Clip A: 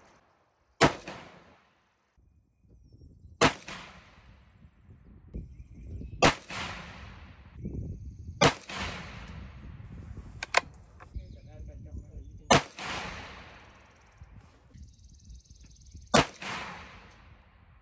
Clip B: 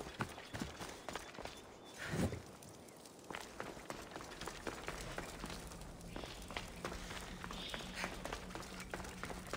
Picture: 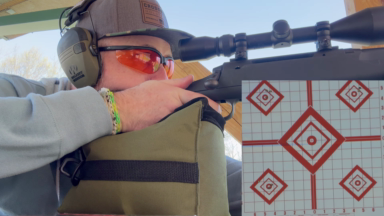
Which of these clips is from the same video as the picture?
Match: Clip A